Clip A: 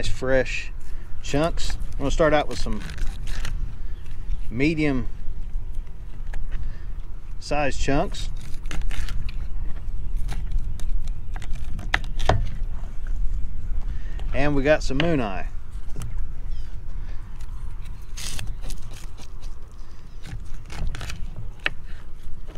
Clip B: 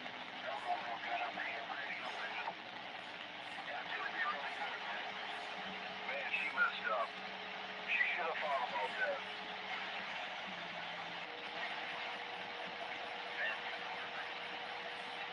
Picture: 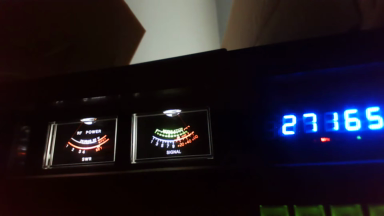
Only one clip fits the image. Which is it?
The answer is B